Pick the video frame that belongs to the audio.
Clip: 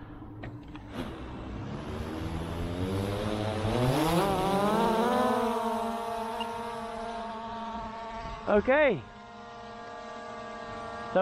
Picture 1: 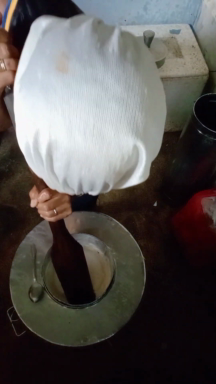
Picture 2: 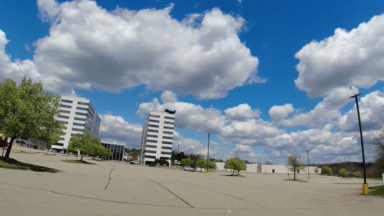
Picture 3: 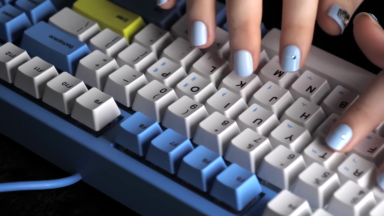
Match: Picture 2